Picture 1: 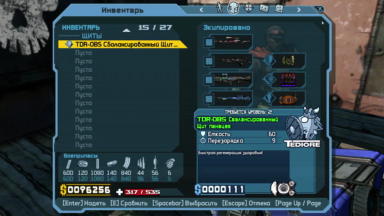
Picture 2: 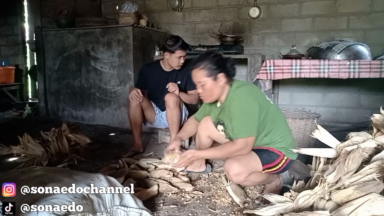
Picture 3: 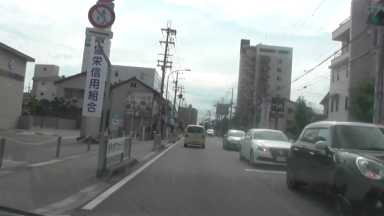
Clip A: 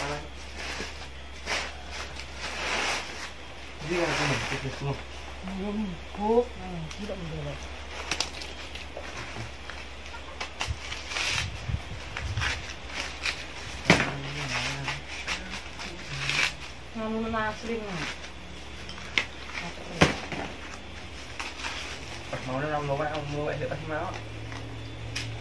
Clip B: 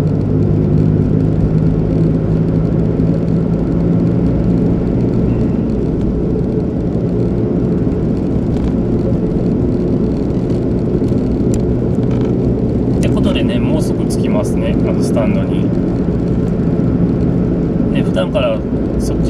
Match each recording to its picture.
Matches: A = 2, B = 3